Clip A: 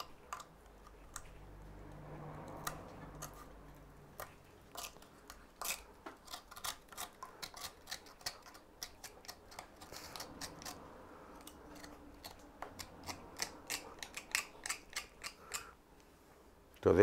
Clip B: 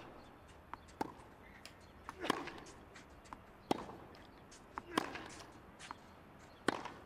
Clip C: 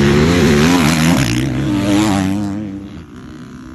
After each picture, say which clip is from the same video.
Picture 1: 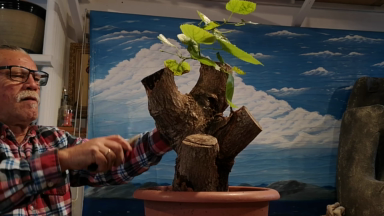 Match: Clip A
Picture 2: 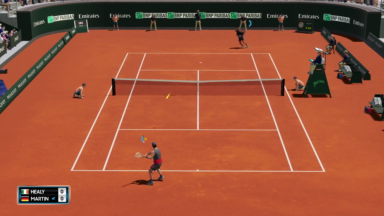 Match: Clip B